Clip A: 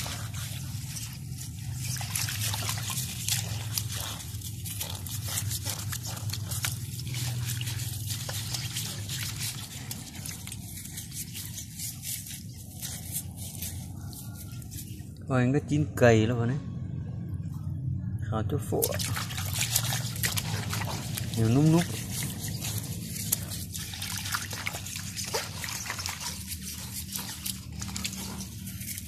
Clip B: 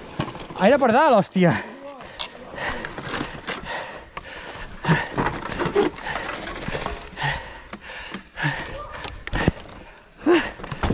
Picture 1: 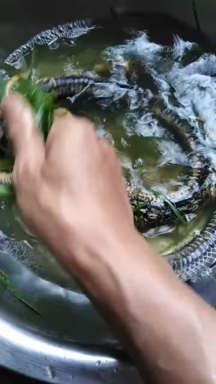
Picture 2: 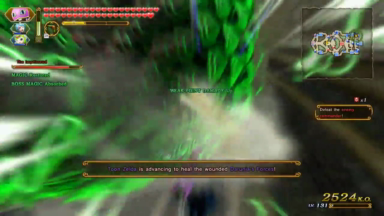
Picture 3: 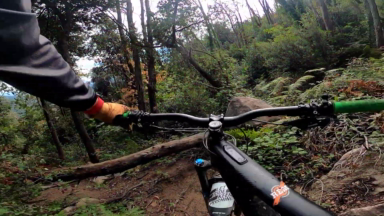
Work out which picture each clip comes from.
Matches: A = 1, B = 3